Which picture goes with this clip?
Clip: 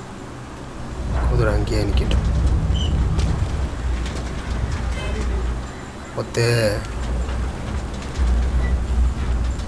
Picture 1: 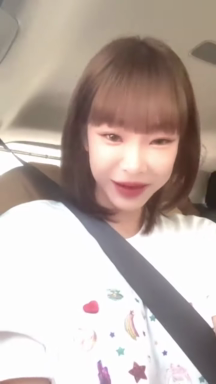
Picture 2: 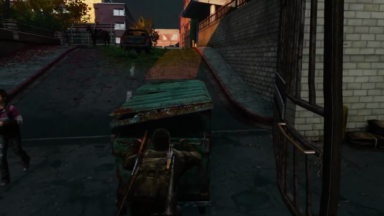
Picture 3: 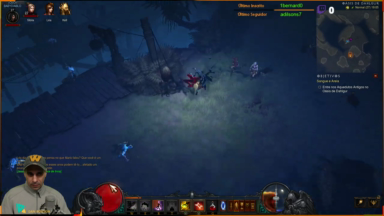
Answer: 2